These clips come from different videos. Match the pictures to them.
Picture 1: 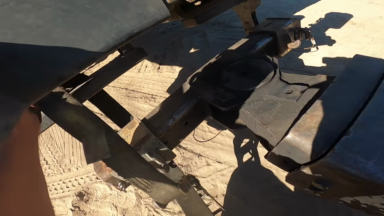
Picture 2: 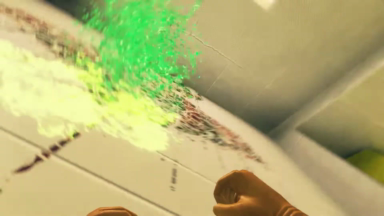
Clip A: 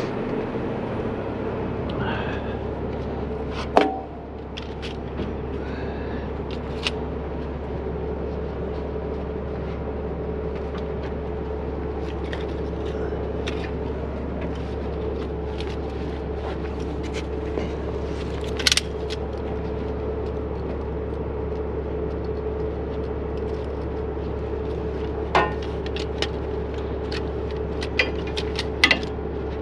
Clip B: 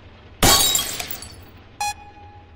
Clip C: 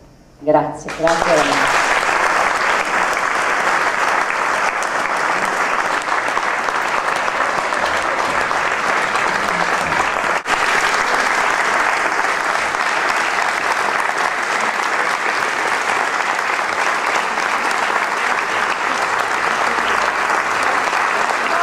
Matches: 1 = A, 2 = B